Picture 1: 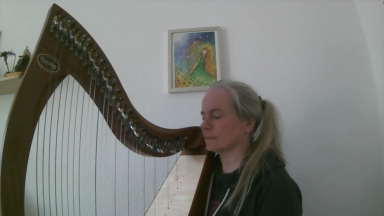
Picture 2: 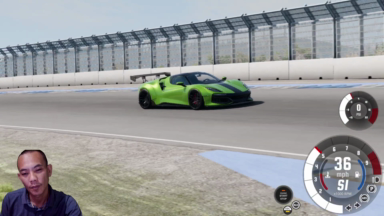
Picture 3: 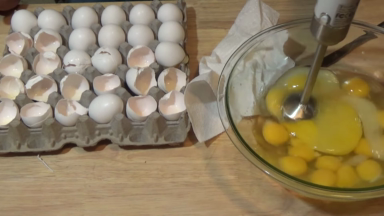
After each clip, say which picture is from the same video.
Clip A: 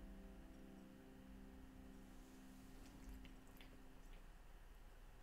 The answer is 1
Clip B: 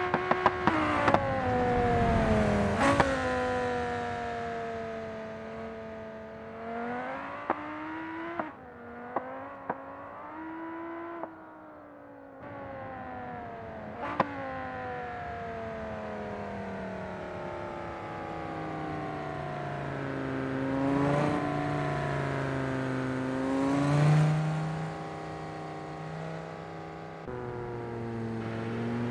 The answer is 2